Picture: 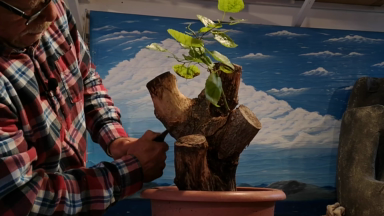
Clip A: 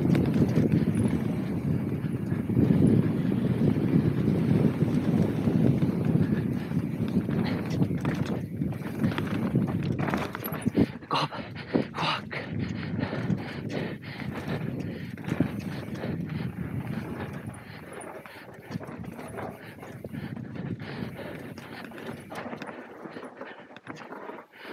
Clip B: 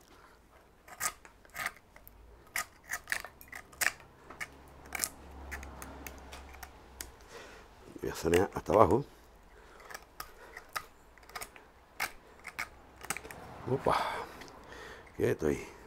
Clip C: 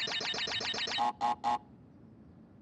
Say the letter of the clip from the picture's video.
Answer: B